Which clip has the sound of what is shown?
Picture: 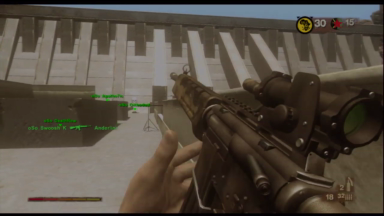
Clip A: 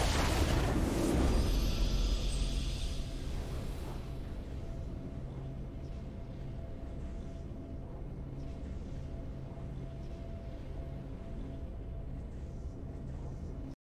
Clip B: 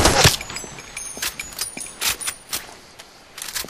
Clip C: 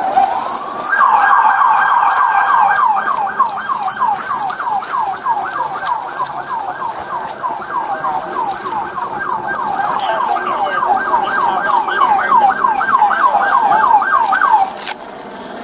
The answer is B